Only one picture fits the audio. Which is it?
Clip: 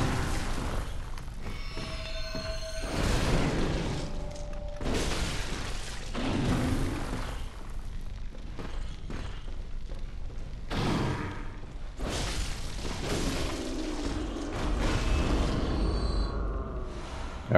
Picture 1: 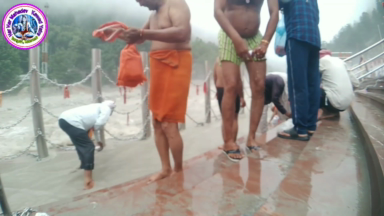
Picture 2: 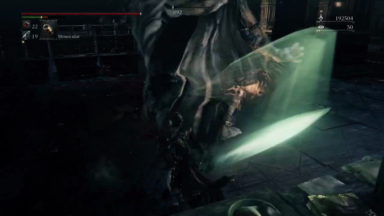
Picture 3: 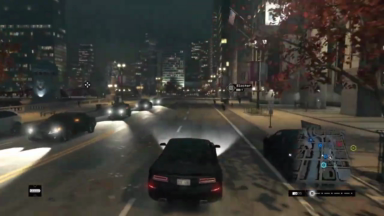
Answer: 2